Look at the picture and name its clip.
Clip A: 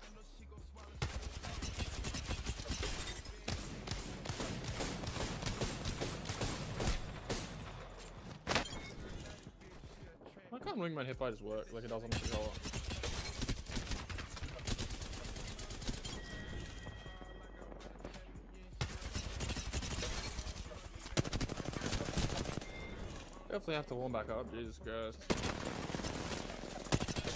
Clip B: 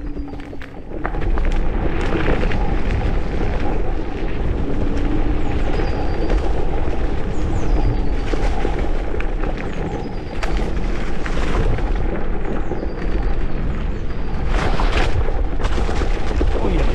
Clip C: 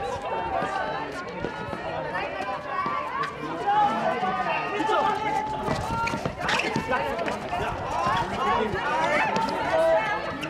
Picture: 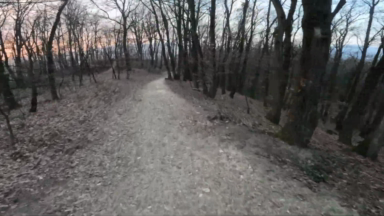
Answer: B